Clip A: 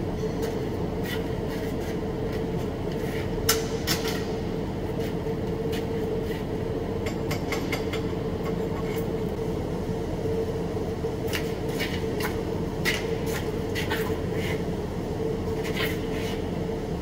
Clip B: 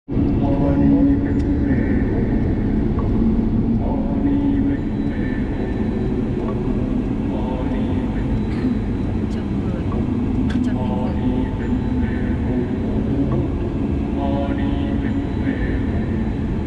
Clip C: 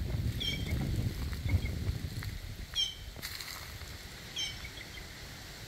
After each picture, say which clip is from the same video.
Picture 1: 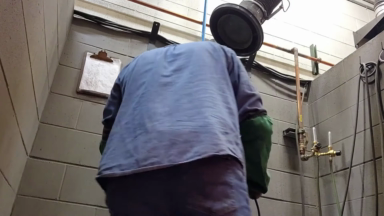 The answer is A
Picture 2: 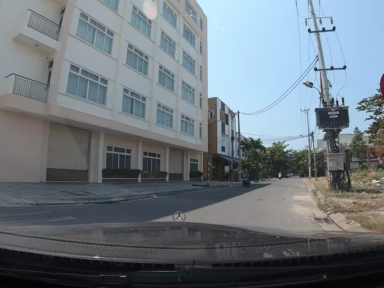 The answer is B